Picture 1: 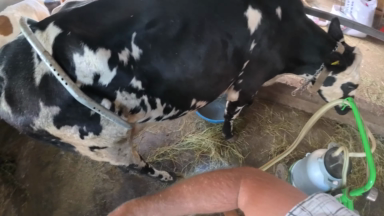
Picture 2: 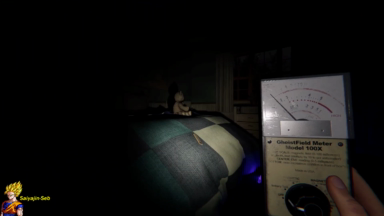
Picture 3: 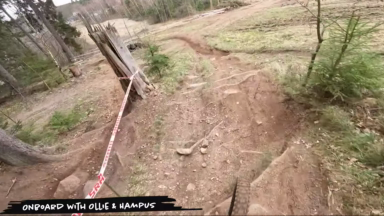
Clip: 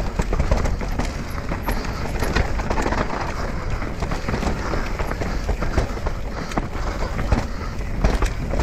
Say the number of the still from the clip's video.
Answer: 3